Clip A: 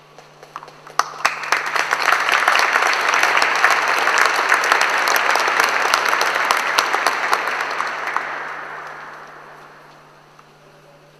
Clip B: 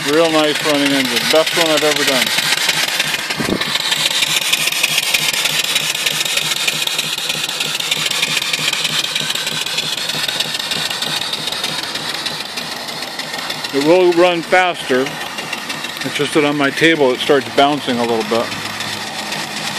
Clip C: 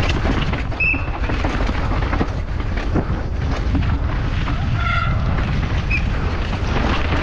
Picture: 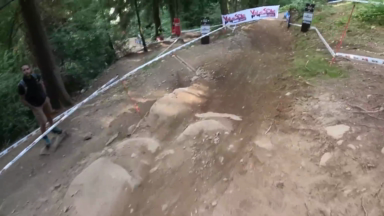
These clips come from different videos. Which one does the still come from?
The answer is C